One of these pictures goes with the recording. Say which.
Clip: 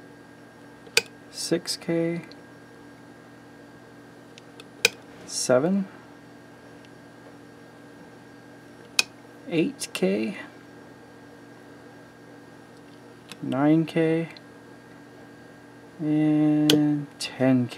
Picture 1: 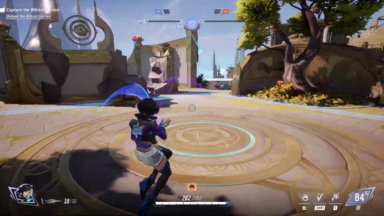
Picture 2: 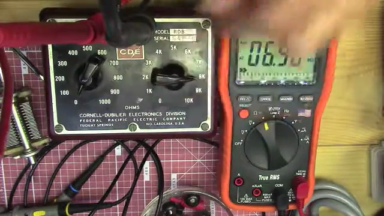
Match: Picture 2